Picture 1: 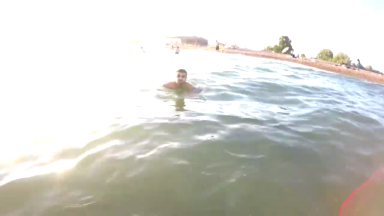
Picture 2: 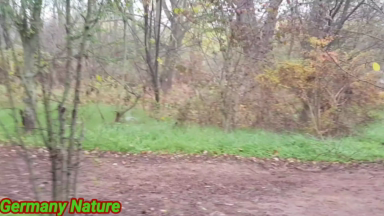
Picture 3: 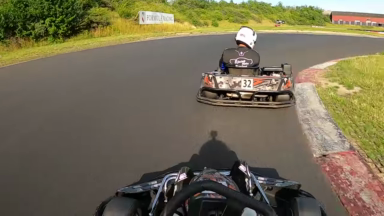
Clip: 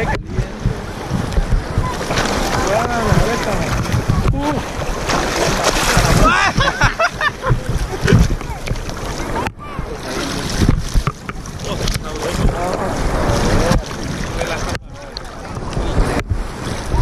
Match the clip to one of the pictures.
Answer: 1